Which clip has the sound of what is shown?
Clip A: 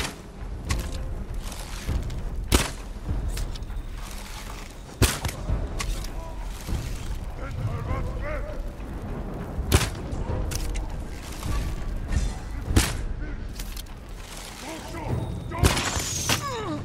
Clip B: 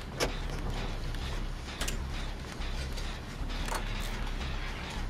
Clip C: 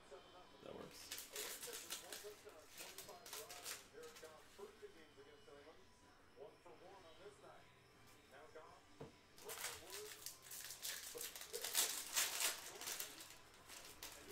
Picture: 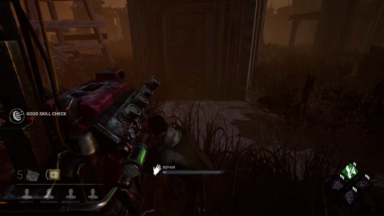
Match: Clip B